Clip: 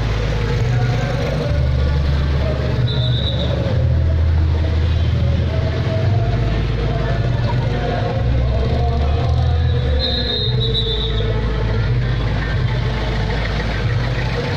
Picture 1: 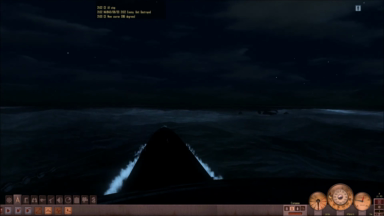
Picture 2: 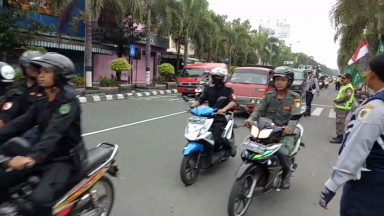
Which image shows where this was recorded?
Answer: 2